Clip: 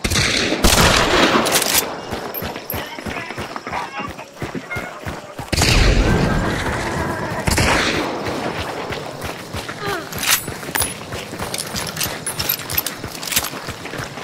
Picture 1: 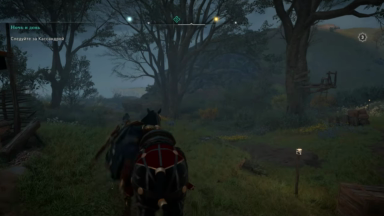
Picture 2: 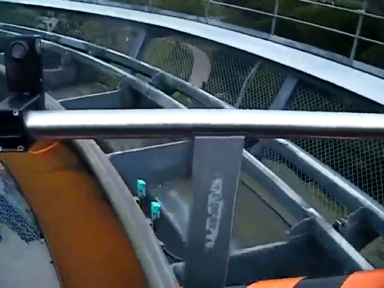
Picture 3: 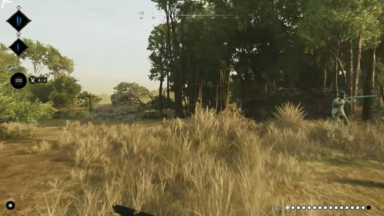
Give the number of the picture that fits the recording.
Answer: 3